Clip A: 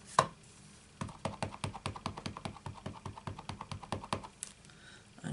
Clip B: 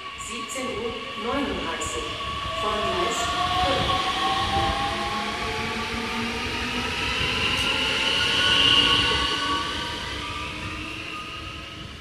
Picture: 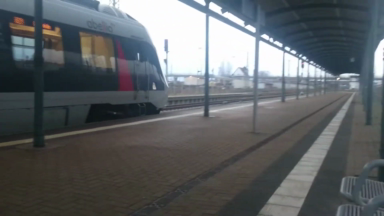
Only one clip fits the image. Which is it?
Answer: B